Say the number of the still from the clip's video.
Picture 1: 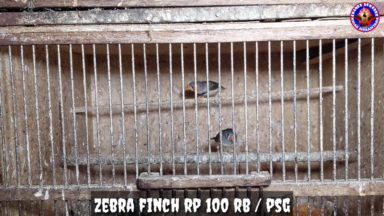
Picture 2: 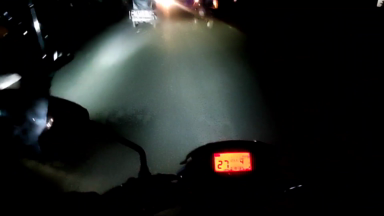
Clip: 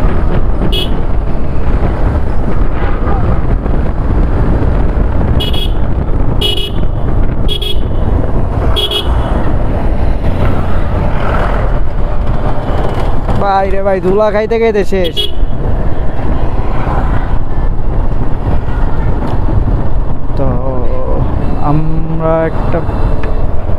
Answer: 2